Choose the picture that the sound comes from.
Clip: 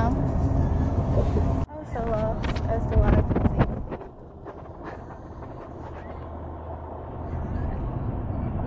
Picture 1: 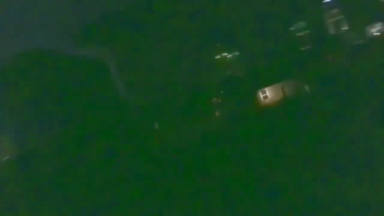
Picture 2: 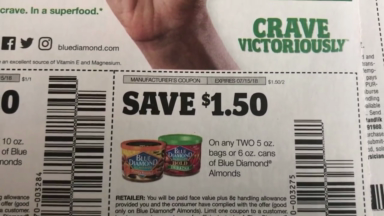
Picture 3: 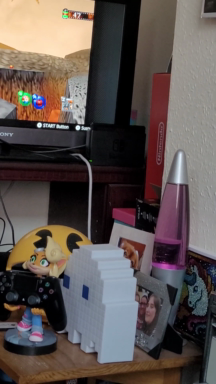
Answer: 1